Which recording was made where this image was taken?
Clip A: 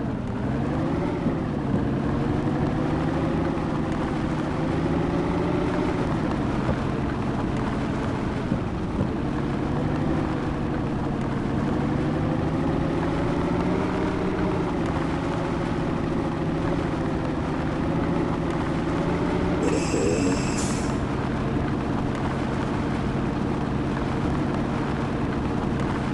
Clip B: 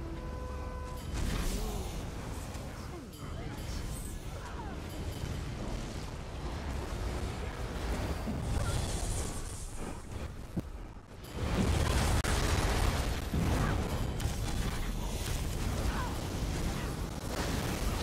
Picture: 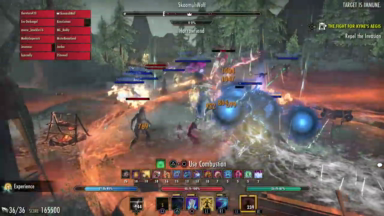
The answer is B